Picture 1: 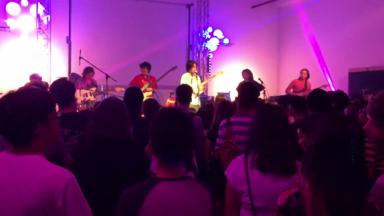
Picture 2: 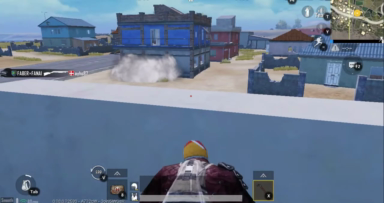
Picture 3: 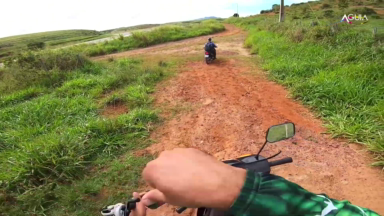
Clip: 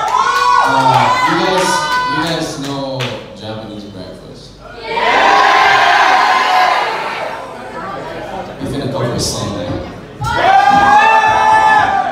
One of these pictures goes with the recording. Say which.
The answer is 1